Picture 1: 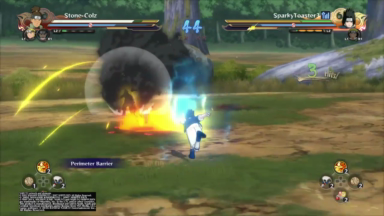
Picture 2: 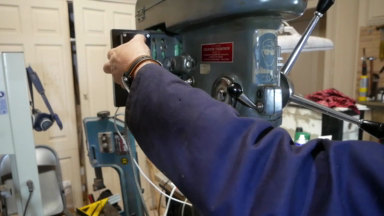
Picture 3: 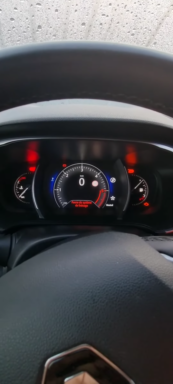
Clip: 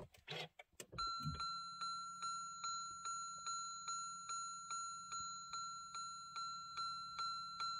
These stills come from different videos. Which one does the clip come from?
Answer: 3